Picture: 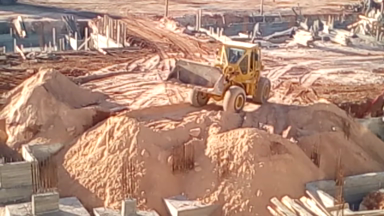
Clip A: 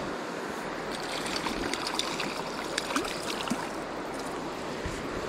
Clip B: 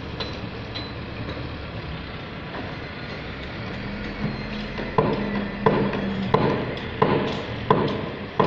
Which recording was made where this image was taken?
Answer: B